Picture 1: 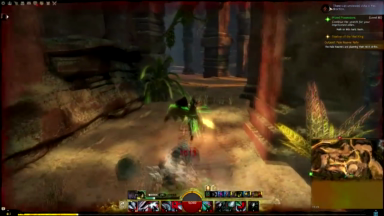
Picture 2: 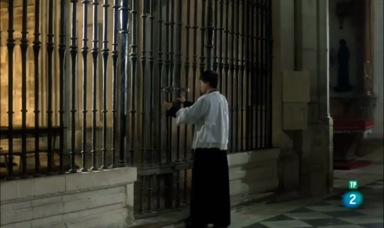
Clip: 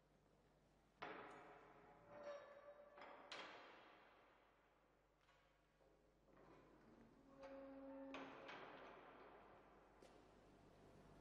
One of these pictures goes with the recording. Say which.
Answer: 2